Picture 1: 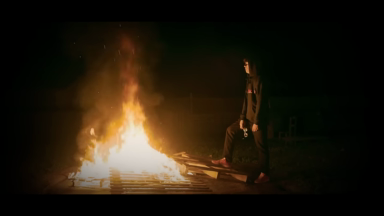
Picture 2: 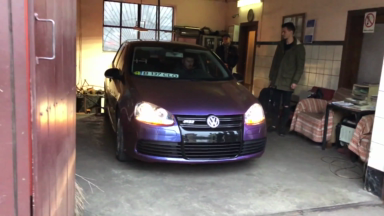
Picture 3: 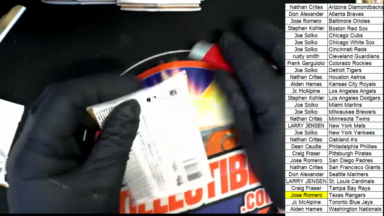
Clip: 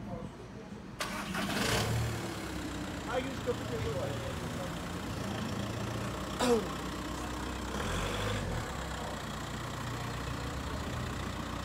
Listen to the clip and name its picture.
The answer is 2